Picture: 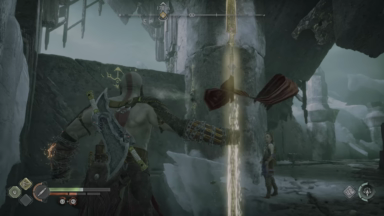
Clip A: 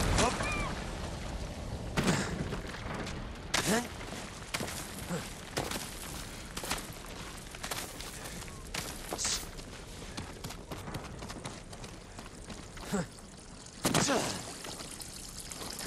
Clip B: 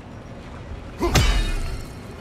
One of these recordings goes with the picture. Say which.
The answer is B